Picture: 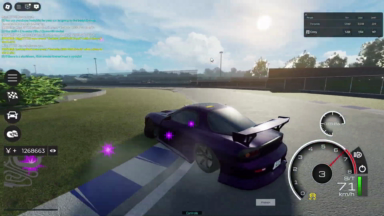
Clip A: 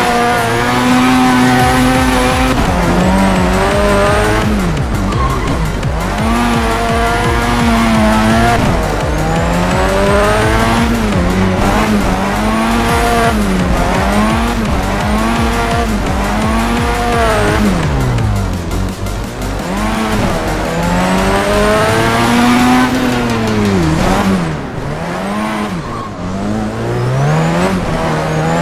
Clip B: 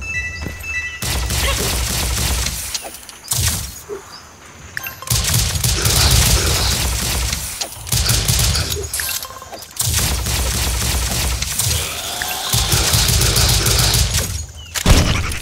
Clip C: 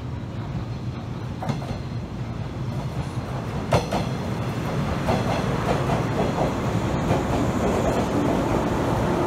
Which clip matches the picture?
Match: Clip A